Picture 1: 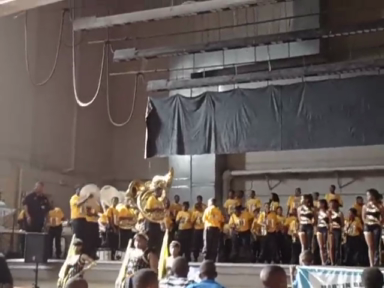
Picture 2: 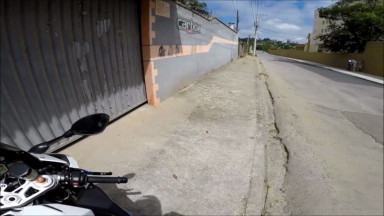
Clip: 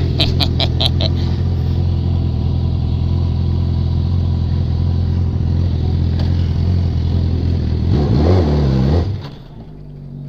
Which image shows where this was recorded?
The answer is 2